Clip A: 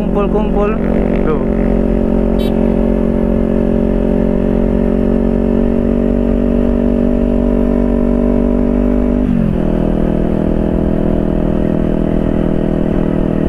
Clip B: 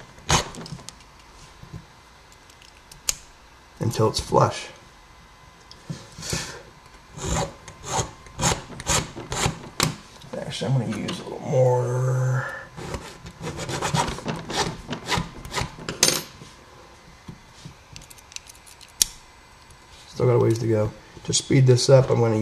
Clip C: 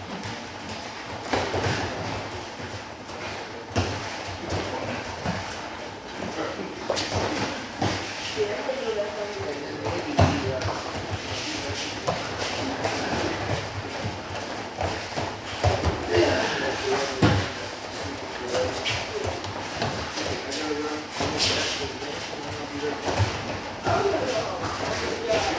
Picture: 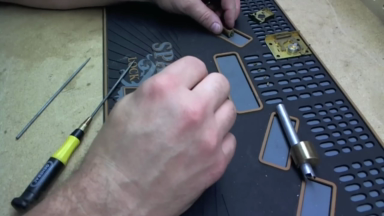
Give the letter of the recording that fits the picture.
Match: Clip B